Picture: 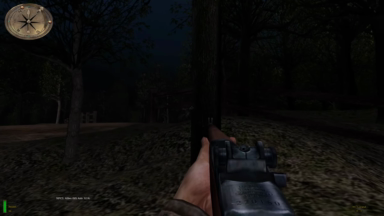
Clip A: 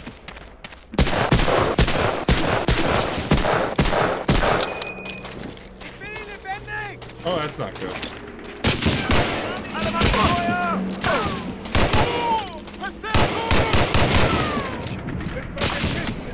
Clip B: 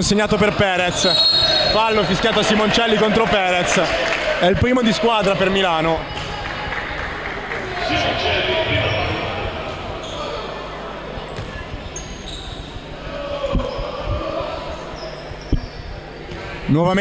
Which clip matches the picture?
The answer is A